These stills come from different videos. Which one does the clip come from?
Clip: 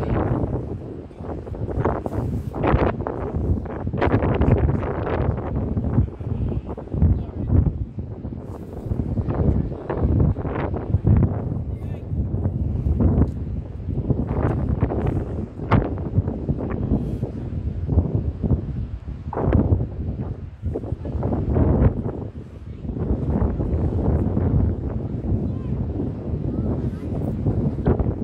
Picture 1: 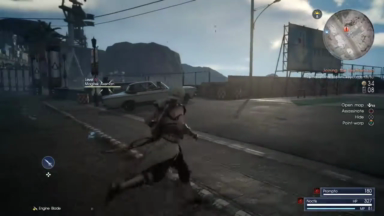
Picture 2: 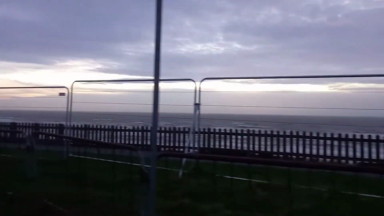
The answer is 2